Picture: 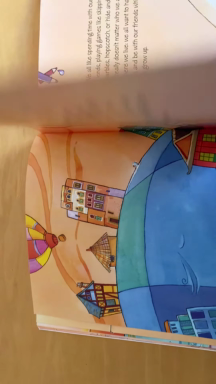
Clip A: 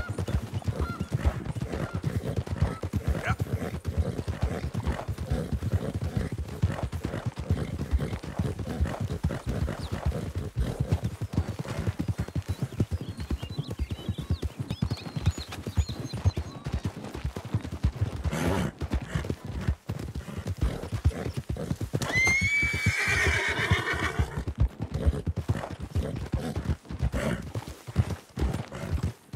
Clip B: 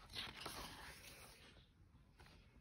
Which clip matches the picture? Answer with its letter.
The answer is B